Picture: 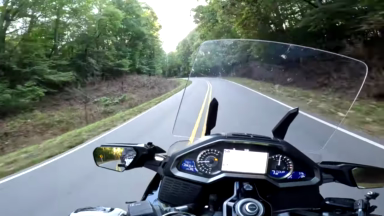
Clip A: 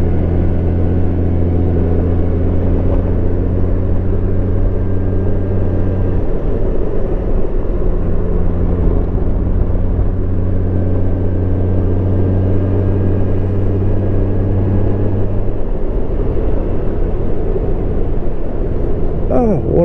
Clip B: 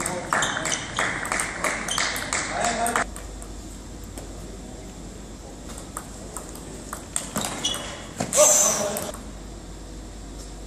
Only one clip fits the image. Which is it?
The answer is A